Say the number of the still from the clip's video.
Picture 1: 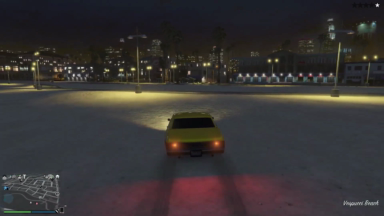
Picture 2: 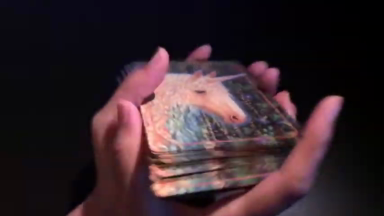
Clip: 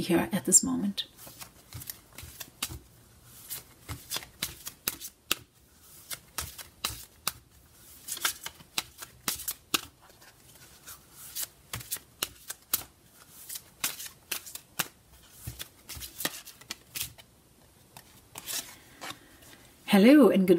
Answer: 2